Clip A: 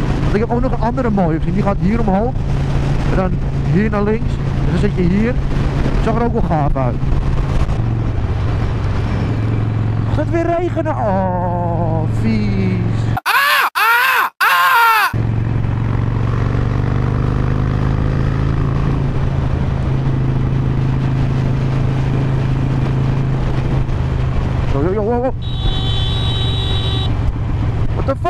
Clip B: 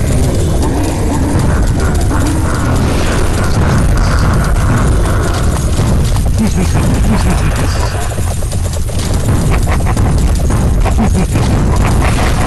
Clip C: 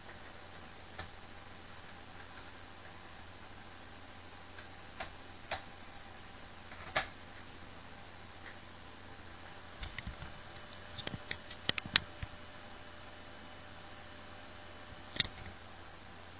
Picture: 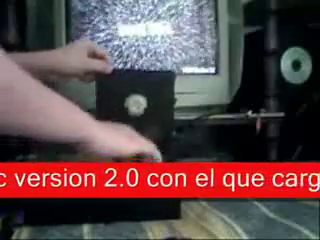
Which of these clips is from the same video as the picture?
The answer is C